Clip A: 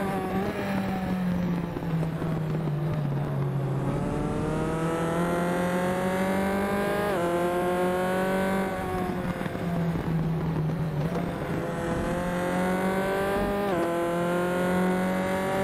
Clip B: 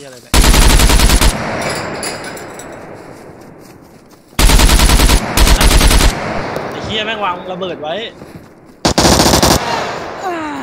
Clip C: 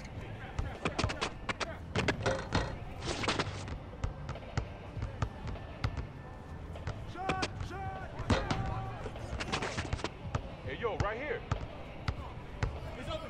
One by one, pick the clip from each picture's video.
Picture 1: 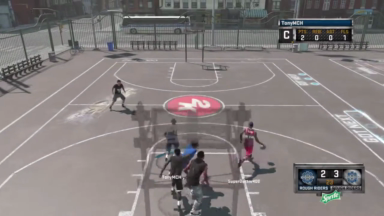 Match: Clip C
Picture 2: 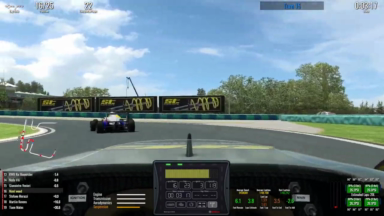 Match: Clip A